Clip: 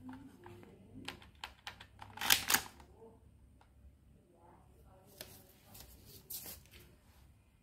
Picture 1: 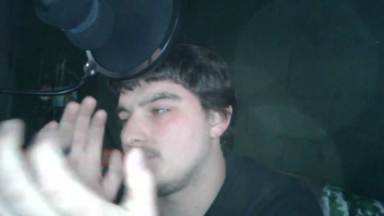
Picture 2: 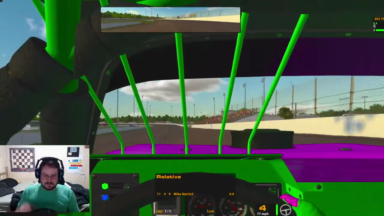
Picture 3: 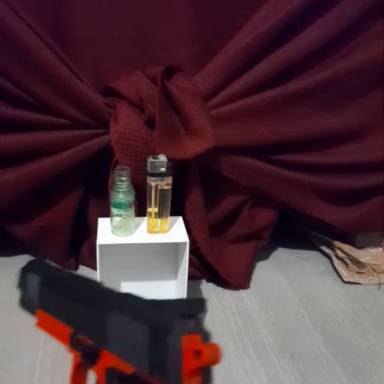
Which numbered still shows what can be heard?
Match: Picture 3